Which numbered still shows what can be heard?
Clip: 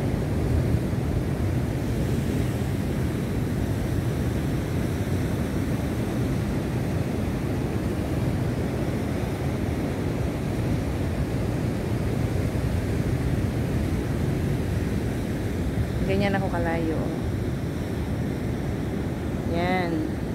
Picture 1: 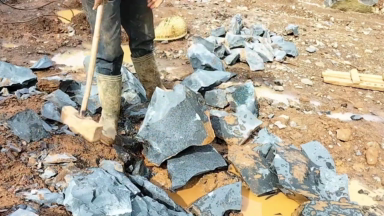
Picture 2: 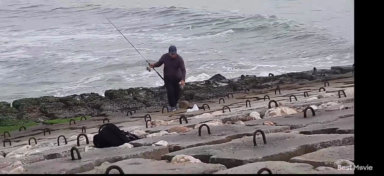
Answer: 2